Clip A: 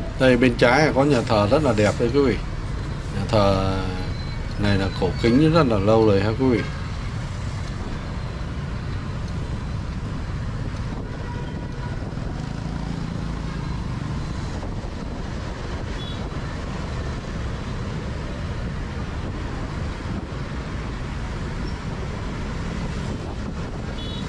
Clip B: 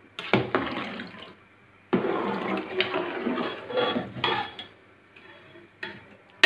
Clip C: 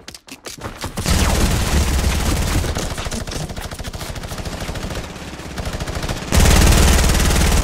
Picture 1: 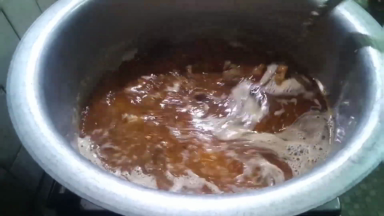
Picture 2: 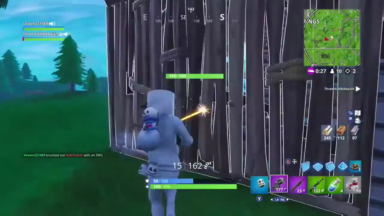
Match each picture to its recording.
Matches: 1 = B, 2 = C